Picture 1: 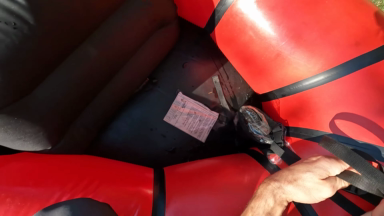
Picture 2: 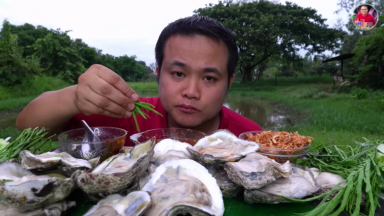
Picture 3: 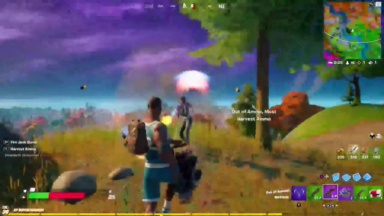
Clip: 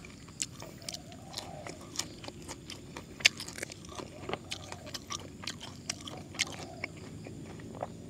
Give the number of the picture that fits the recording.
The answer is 2